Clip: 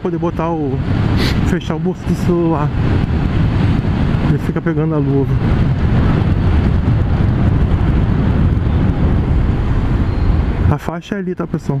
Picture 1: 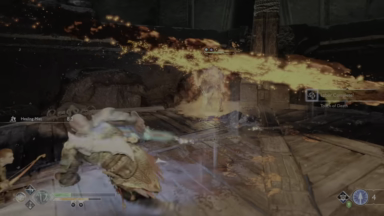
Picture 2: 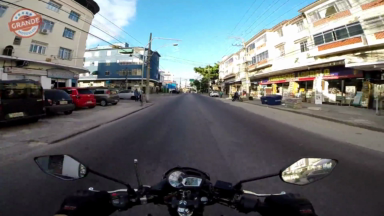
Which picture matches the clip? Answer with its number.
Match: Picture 2